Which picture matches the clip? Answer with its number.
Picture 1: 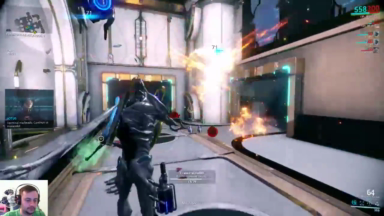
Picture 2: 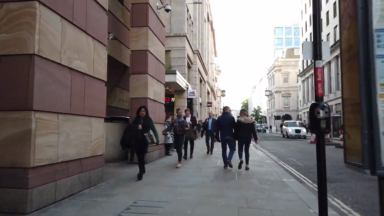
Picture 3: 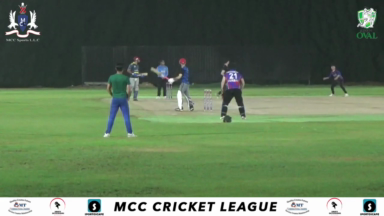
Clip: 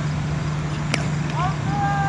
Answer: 3